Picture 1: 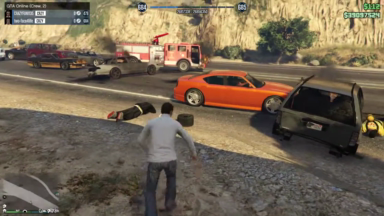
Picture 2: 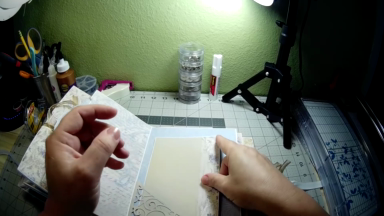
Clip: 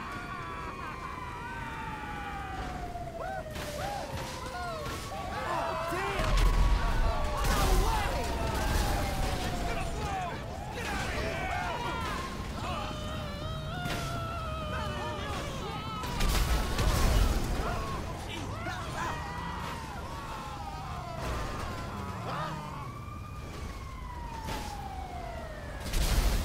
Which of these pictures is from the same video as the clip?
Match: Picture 1